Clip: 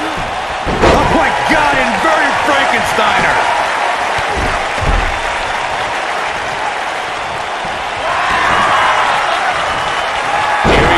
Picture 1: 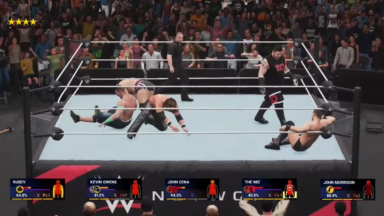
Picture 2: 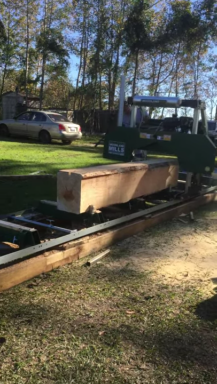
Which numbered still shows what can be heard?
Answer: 1